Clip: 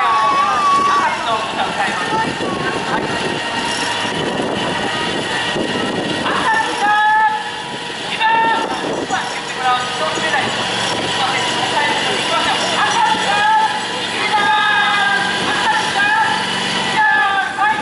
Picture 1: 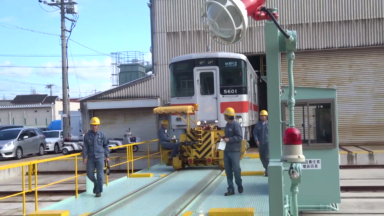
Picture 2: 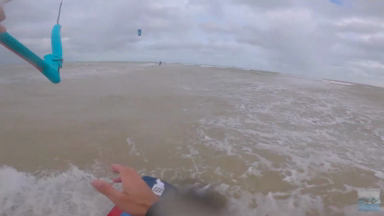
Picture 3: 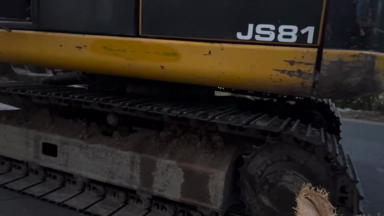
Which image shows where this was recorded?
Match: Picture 1